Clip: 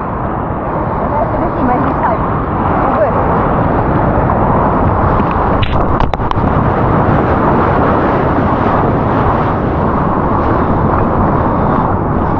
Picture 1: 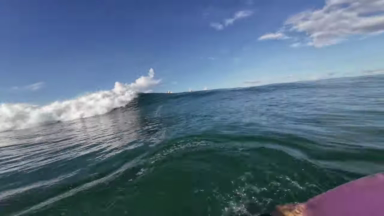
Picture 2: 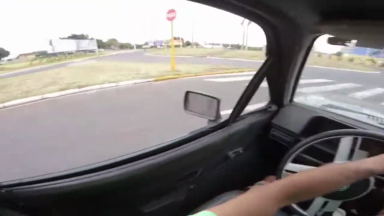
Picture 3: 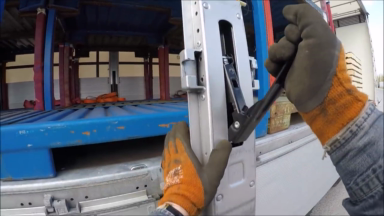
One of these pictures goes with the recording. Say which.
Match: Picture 1